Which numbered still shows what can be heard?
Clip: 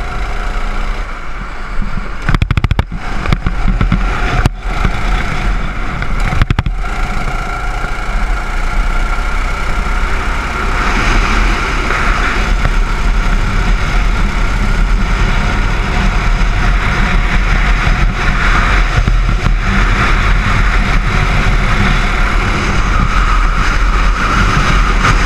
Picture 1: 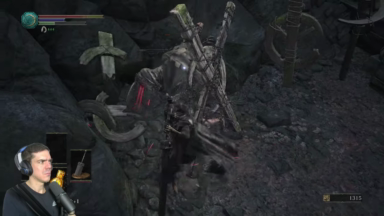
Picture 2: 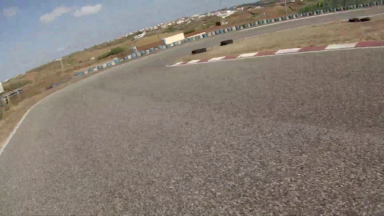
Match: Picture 2